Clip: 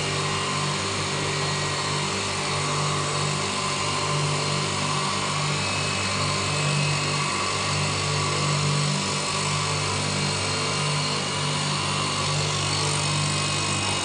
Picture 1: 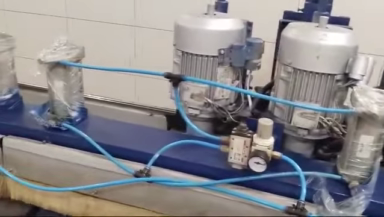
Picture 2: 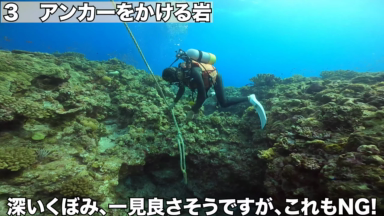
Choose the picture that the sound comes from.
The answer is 1